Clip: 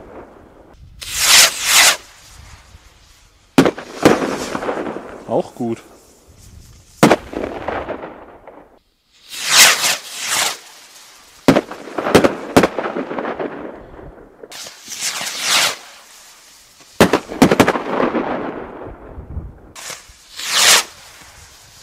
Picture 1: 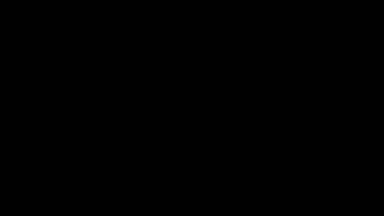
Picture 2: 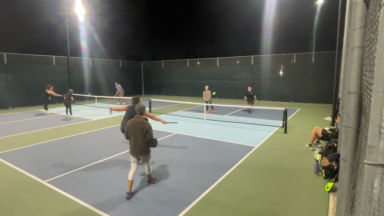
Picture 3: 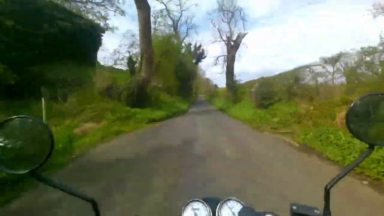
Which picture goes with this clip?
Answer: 1